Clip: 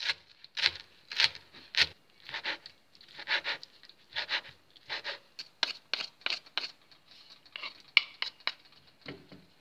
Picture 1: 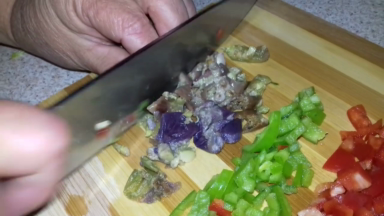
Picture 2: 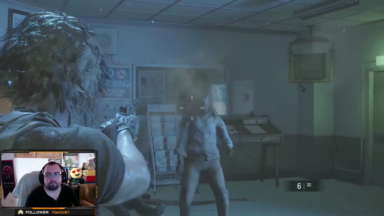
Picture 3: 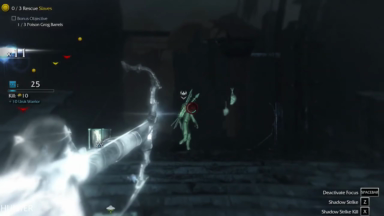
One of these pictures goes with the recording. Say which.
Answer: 1